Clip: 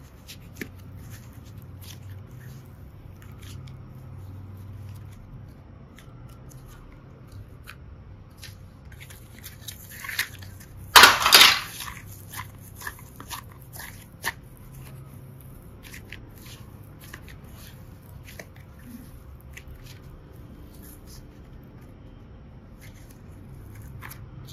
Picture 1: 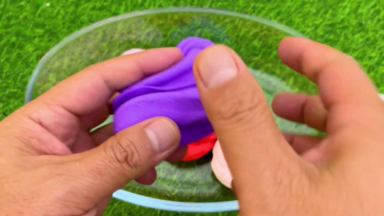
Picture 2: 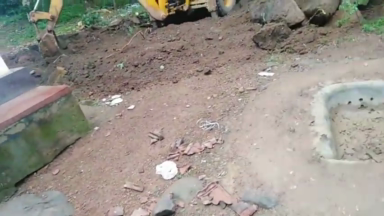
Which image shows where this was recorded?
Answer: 1